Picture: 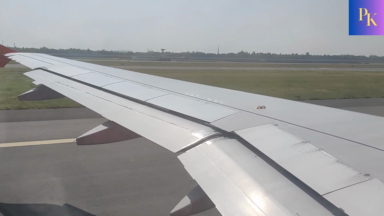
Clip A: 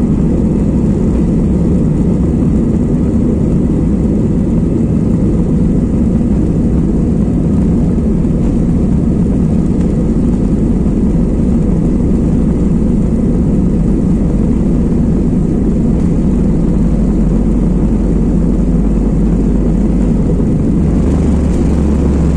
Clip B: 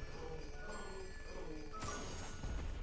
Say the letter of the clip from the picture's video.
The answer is A